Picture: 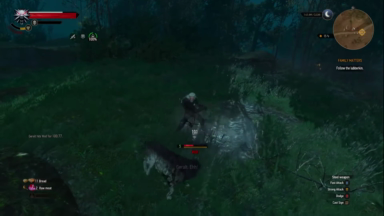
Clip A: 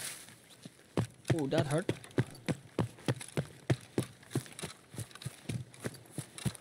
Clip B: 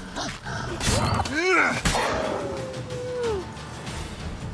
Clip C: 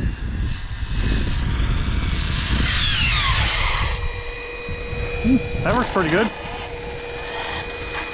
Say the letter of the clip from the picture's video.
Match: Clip B